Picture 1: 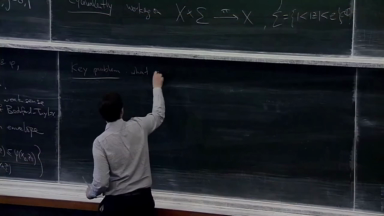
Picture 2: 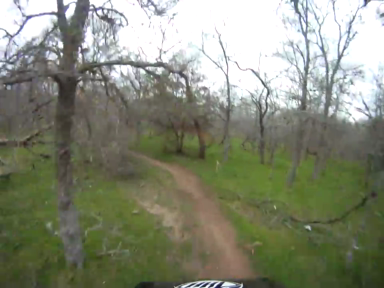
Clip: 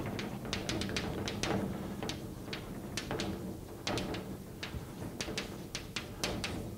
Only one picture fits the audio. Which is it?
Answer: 1